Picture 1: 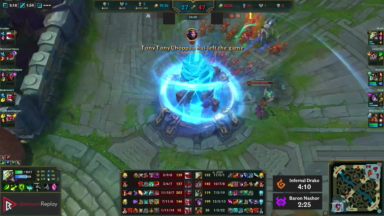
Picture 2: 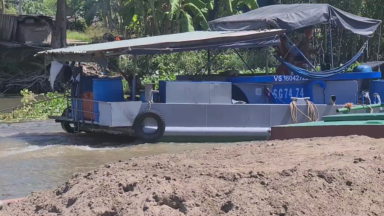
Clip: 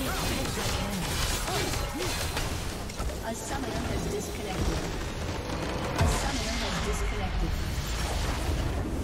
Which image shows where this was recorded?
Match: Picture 1